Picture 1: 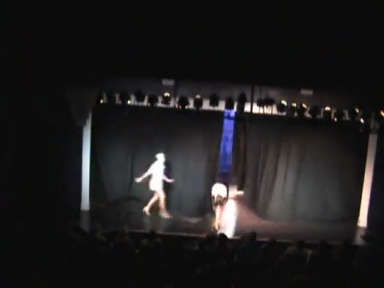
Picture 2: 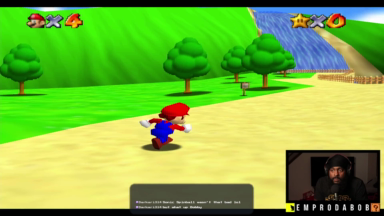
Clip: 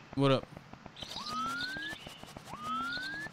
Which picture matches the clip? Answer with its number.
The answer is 2